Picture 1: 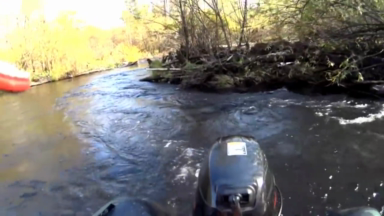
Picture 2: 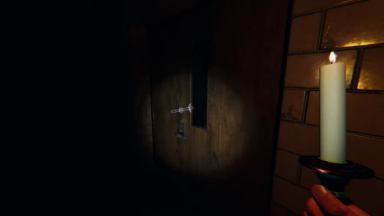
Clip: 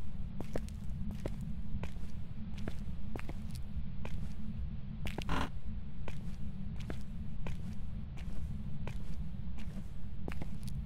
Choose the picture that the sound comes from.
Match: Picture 2